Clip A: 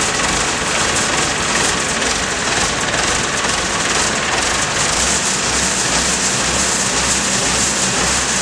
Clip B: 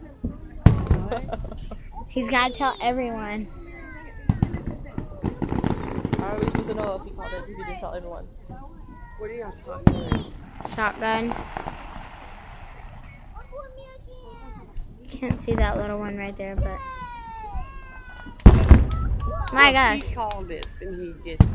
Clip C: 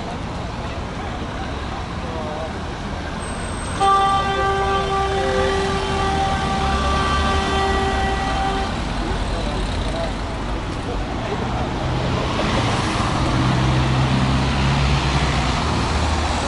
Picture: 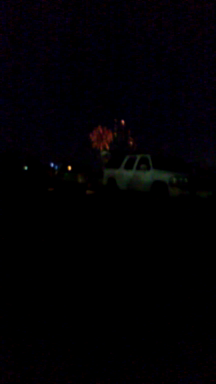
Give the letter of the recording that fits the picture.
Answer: B